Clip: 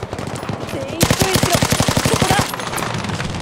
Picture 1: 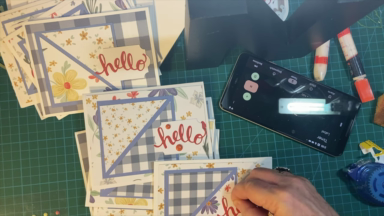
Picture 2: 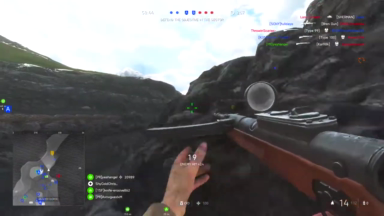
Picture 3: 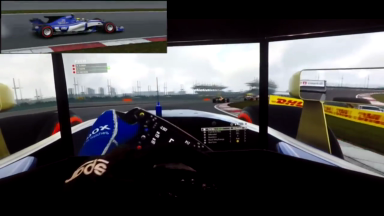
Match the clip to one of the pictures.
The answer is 2